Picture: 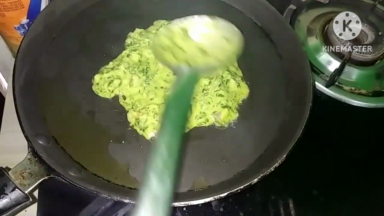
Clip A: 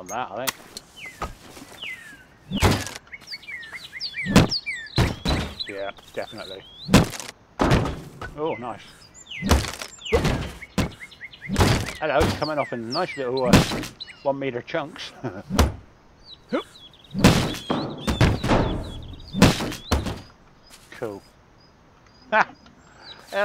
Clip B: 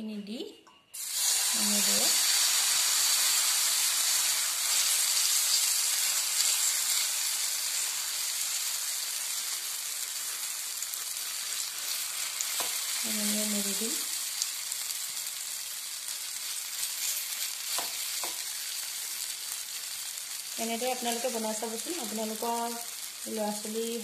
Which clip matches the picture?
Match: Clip B